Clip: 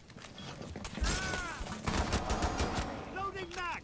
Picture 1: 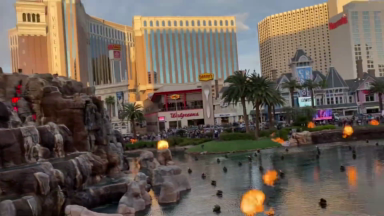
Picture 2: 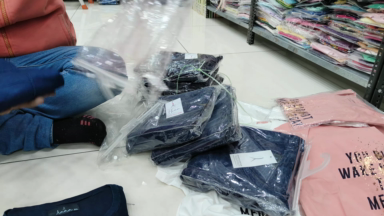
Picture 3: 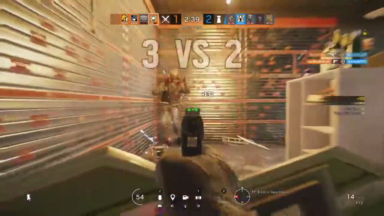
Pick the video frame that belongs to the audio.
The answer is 3